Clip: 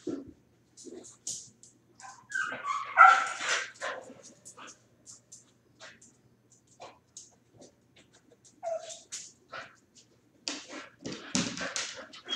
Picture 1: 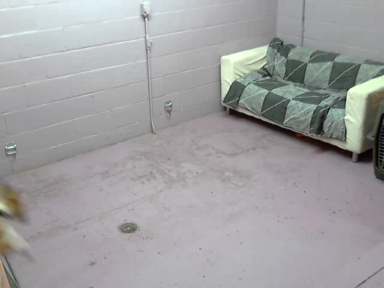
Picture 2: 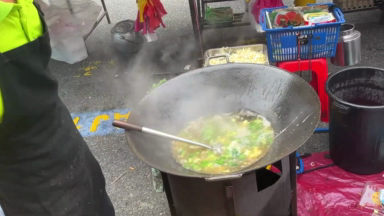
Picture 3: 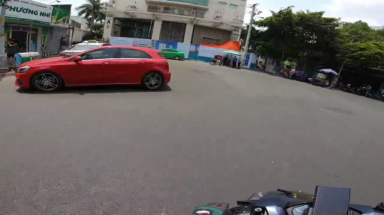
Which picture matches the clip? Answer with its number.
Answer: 1